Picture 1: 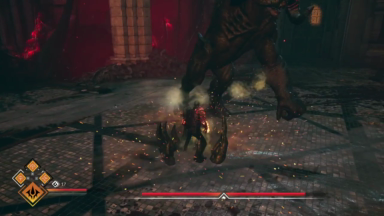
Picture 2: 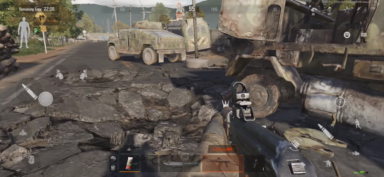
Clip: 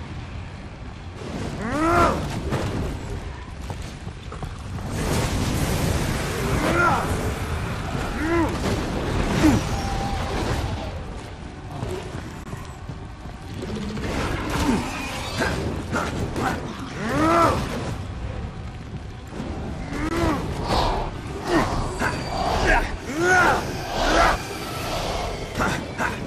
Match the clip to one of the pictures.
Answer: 1